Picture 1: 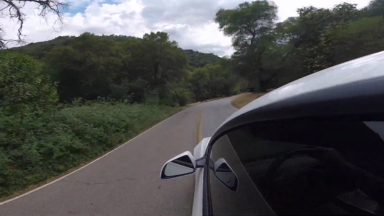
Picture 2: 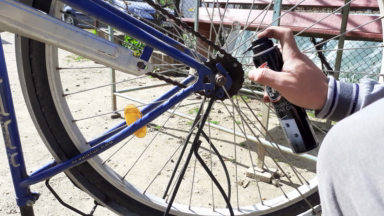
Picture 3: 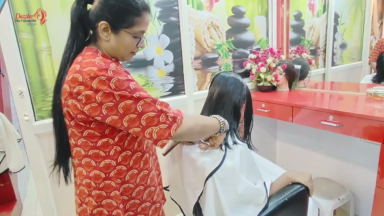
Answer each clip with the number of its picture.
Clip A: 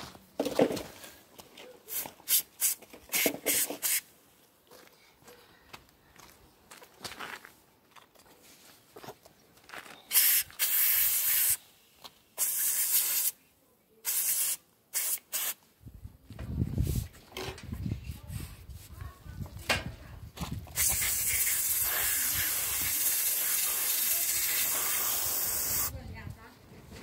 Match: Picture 2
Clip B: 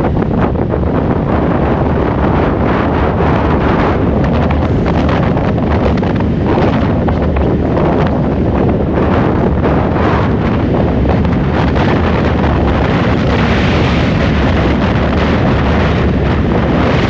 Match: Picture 1